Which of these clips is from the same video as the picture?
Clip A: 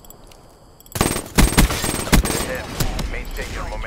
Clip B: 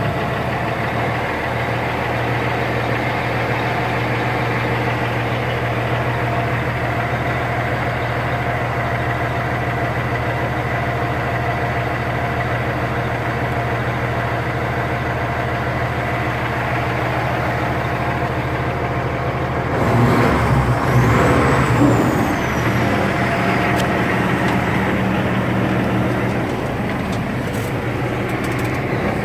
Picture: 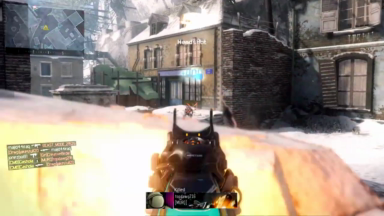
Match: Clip A